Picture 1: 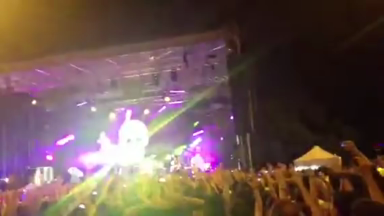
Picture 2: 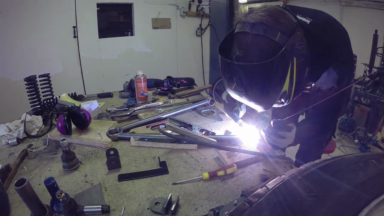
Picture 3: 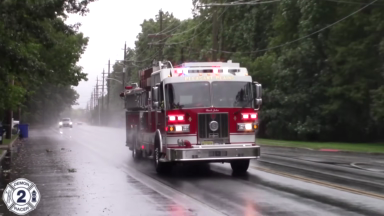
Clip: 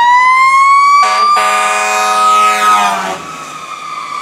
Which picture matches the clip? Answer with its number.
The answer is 3